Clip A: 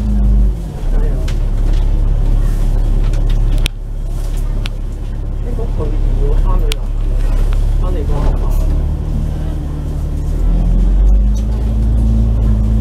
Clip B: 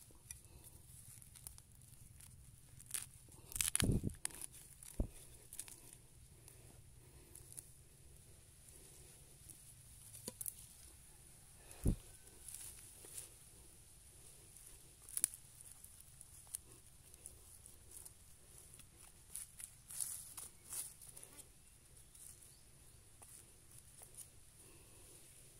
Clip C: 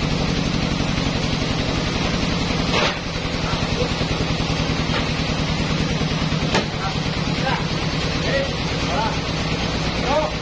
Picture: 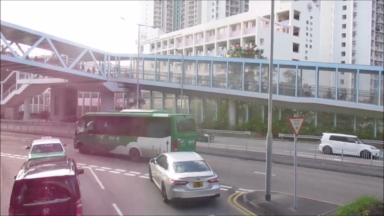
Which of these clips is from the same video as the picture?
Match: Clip A